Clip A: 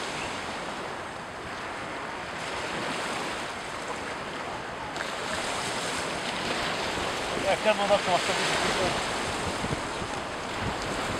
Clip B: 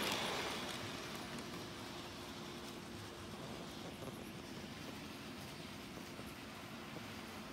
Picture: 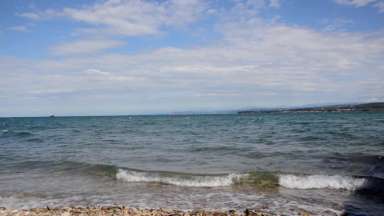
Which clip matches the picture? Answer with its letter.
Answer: A